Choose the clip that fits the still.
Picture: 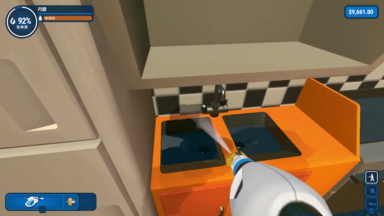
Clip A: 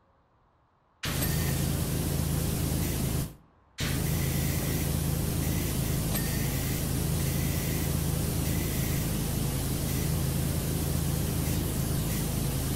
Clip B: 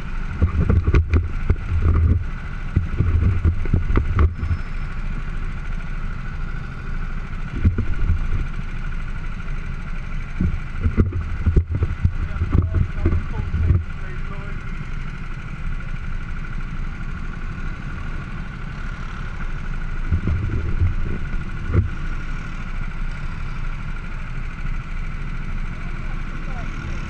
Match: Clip A